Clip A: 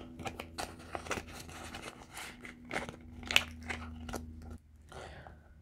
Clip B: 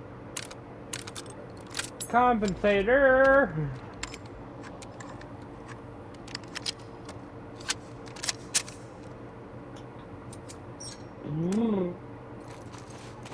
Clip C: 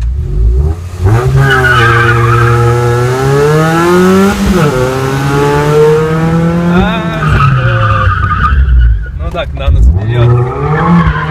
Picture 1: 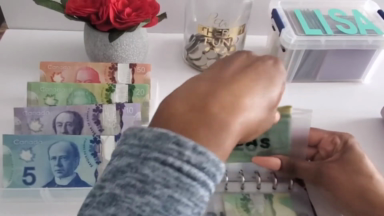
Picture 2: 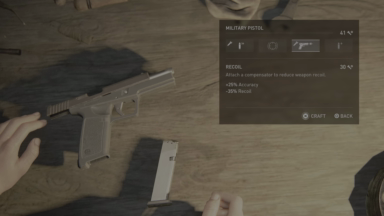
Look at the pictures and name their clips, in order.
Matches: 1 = A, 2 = B